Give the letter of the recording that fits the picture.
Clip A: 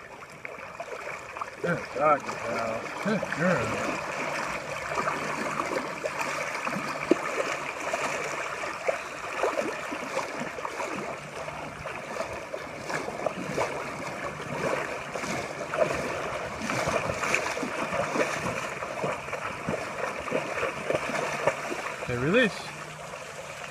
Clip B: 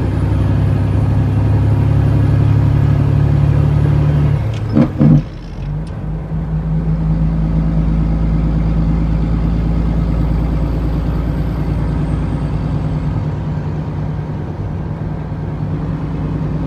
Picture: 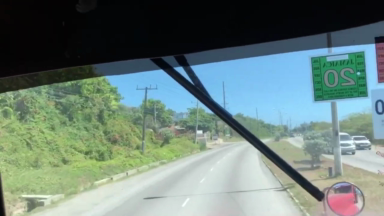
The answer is B